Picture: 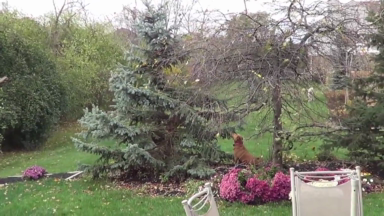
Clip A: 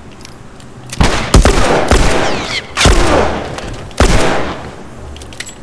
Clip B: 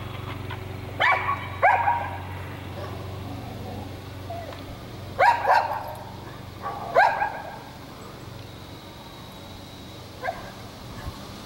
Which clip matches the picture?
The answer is B